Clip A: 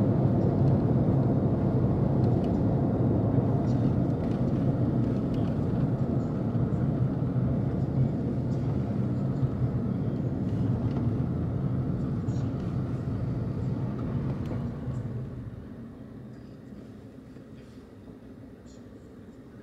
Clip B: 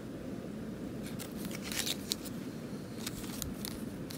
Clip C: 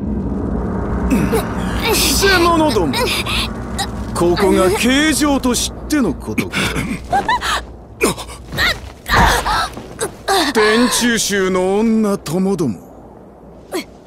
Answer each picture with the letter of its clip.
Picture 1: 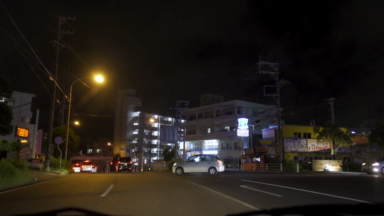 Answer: A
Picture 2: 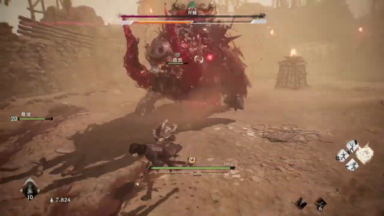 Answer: C